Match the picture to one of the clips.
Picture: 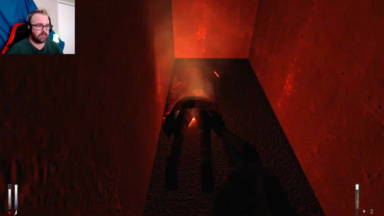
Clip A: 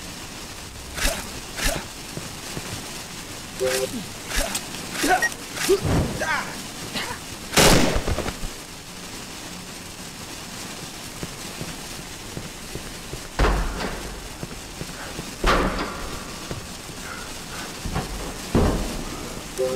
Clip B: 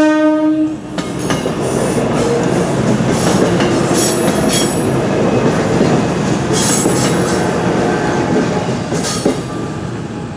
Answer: A